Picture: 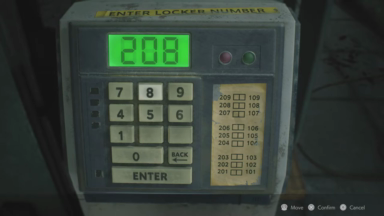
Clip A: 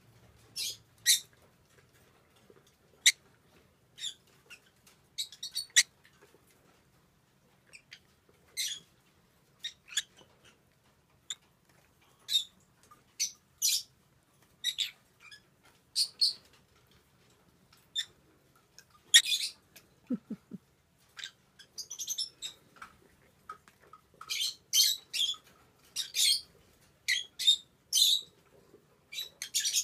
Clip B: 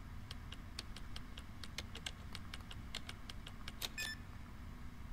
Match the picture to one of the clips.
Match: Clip B